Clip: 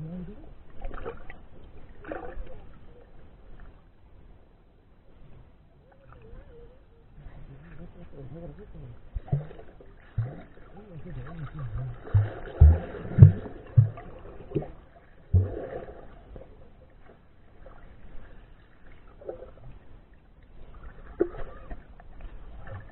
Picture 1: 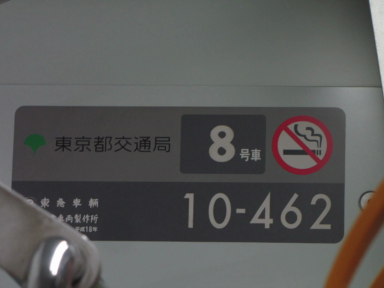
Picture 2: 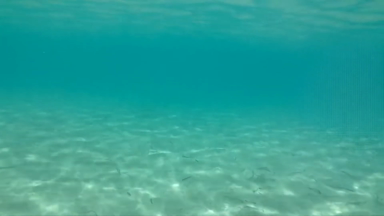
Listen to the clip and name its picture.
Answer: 2